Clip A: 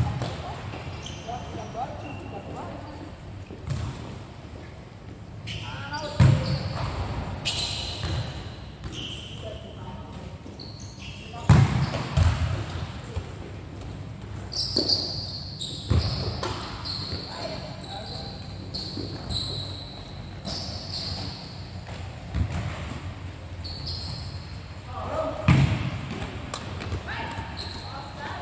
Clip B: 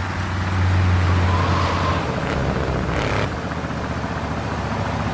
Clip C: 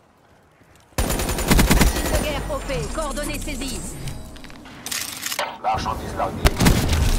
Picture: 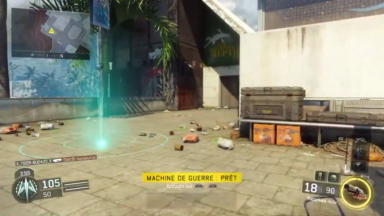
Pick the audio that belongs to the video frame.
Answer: C